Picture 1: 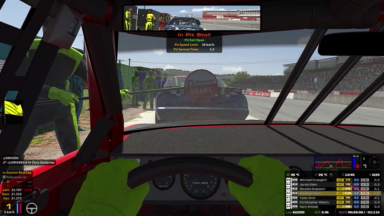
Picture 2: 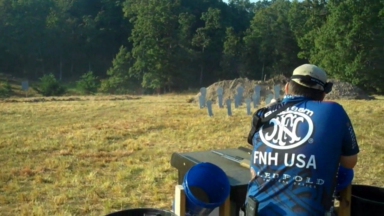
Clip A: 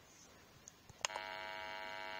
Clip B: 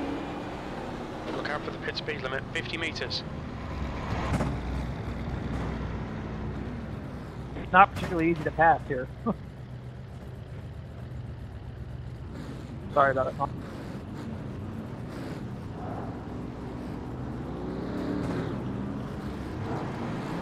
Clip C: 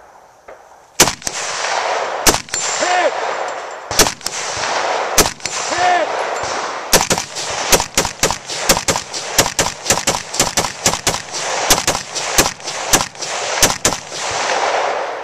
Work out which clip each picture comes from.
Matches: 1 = B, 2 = C